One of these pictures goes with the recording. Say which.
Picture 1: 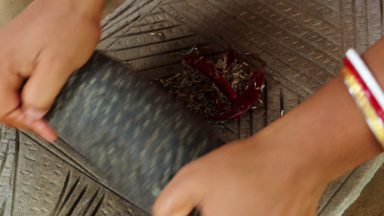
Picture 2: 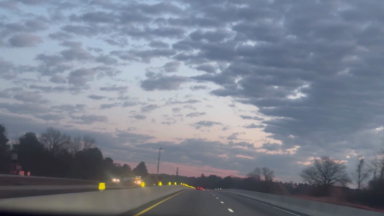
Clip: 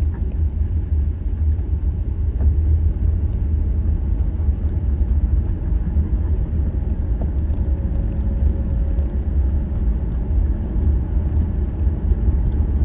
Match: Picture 2